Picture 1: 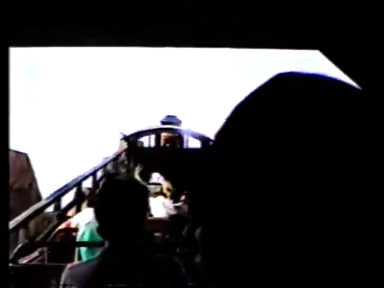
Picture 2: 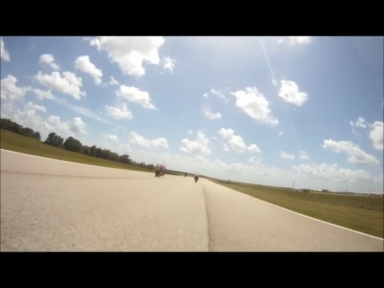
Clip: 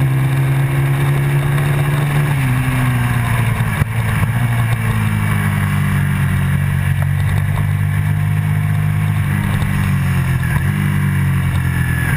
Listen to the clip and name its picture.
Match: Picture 2